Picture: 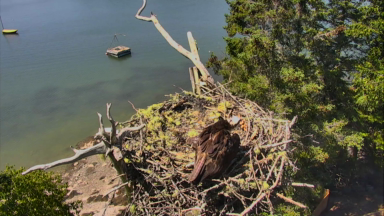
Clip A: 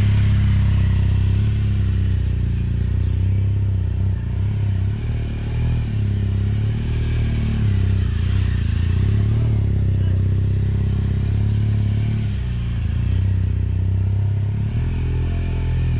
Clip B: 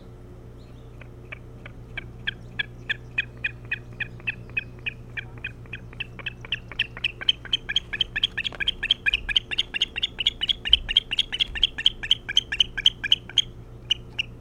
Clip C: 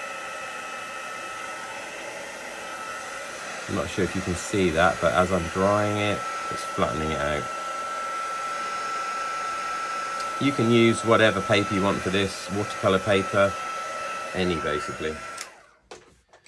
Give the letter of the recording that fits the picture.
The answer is B